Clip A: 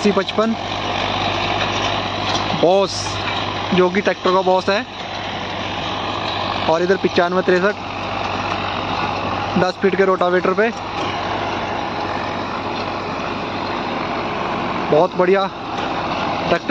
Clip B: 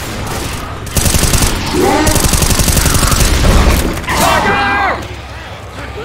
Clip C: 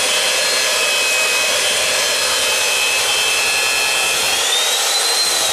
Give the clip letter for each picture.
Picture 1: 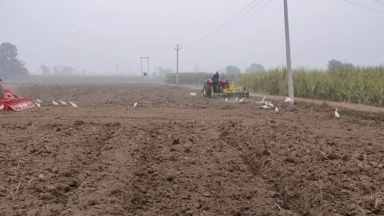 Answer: A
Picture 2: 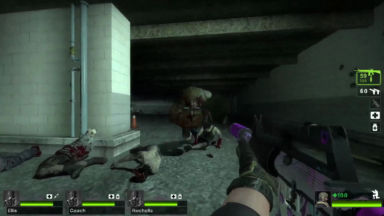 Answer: B